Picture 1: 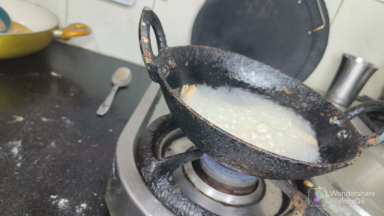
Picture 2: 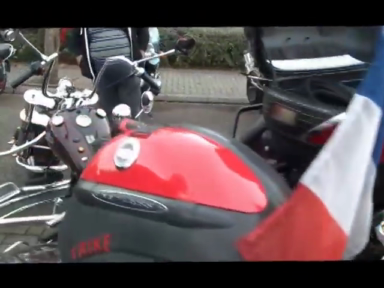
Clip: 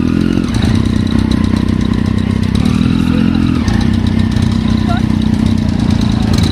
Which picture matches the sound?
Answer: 2